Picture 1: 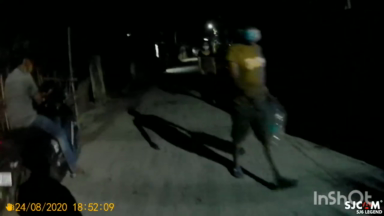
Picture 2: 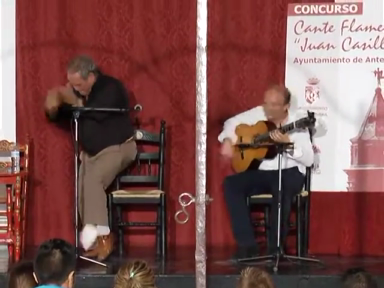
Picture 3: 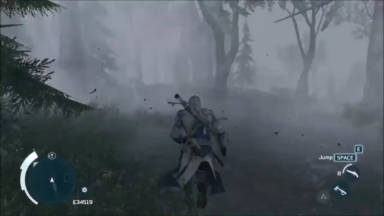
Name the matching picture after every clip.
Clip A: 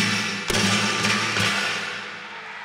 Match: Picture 2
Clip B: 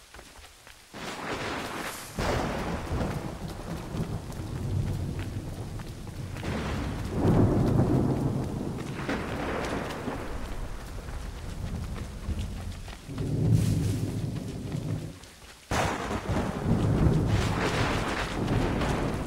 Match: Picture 3